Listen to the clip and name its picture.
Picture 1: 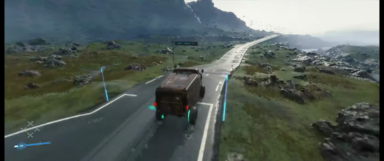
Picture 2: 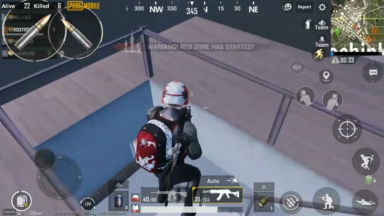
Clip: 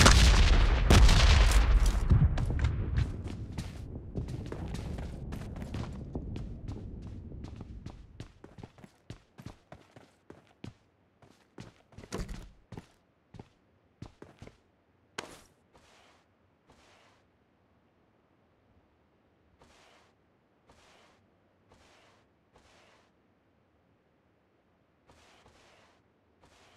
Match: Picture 2